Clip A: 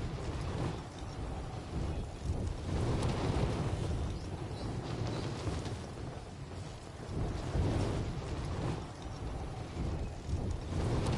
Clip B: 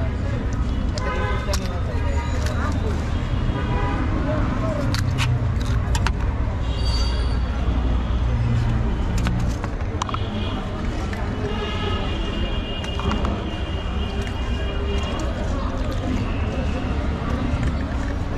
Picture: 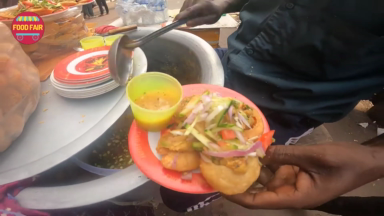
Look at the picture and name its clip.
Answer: B